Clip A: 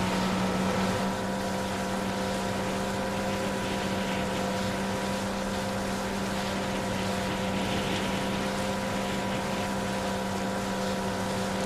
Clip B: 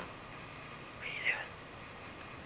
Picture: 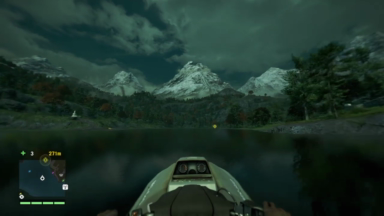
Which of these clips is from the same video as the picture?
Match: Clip A